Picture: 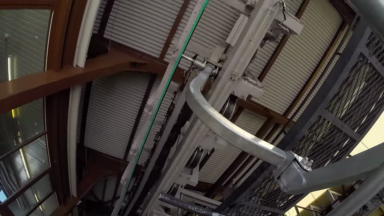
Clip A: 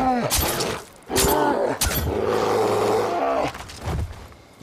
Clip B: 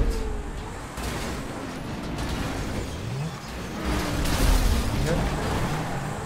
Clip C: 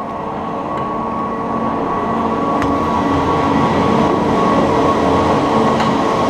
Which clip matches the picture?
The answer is C